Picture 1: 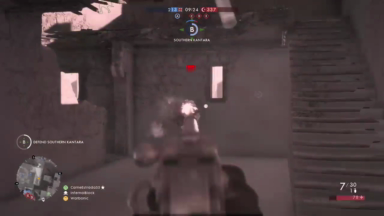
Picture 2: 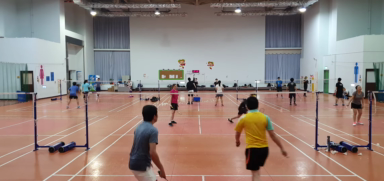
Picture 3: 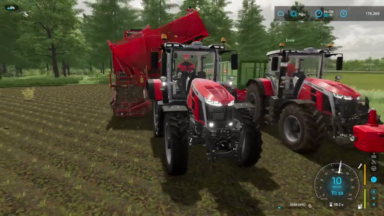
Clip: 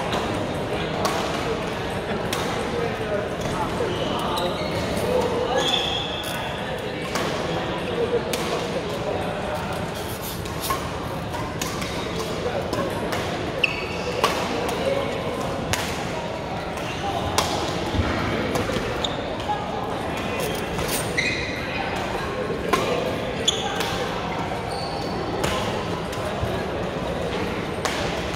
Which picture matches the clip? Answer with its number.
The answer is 2